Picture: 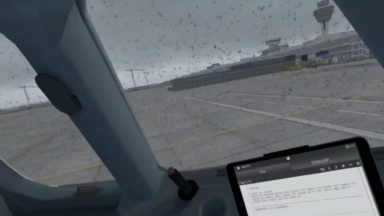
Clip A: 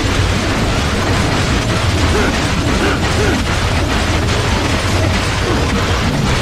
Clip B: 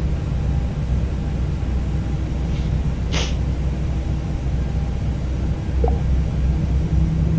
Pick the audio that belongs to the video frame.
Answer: B